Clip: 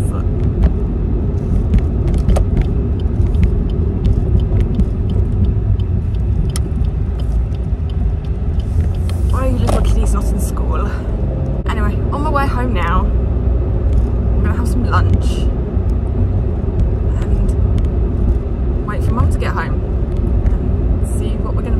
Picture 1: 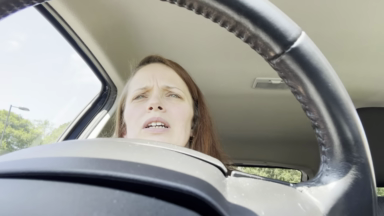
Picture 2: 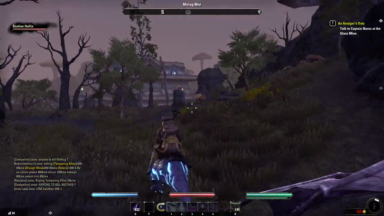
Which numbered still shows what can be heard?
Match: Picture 1